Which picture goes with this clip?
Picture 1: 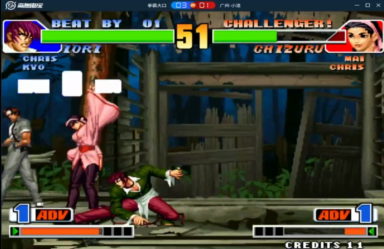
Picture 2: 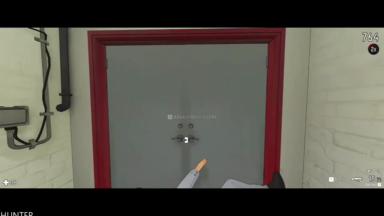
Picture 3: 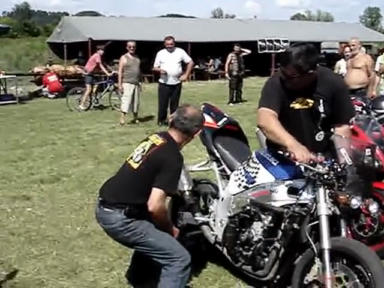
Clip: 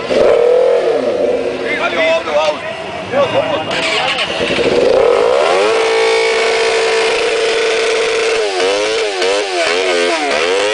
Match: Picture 3